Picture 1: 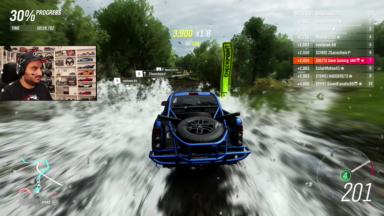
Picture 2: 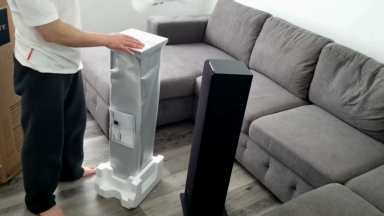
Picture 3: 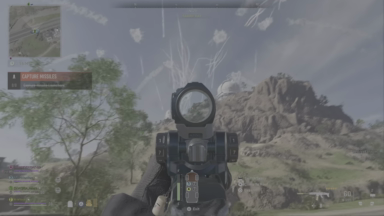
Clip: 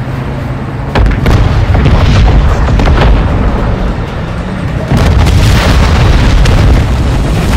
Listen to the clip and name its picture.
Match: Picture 3